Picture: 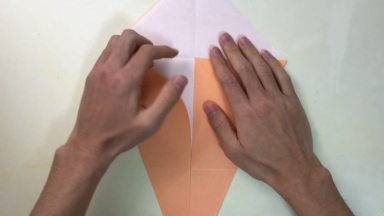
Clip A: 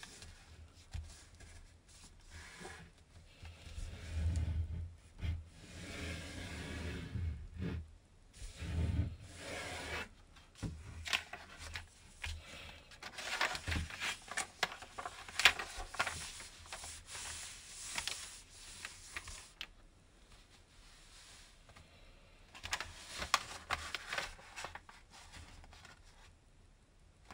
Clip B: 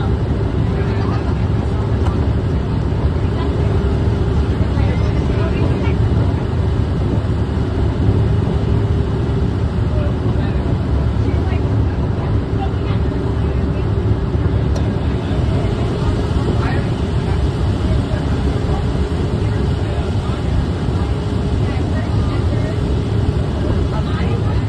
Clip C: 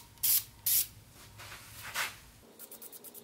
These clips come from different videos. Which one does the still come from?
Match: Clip A